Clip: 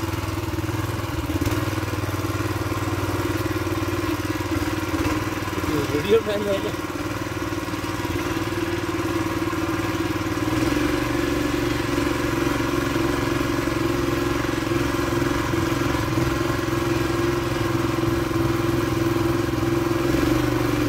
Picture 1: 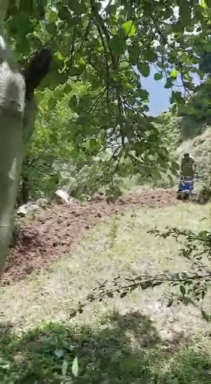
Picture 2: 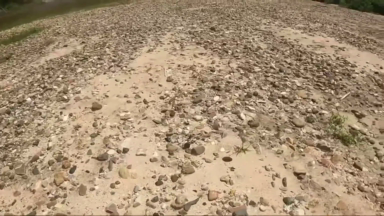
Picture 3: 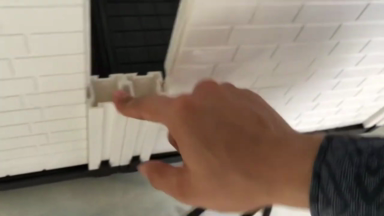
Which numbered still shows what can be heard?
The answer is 1